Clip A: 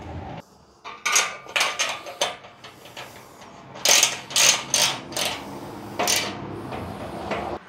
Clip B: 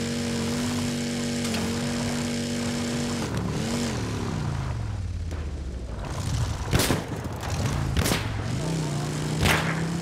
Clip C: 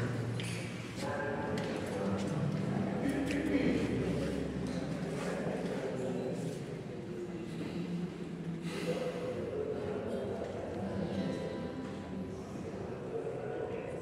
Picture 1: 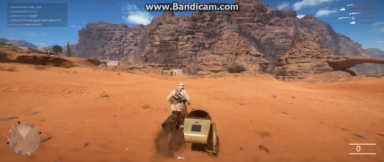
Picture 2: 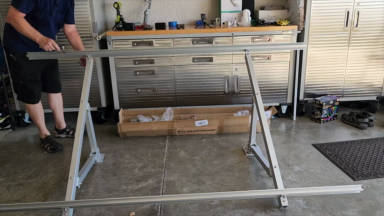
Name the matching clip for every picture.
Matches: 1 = B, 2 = A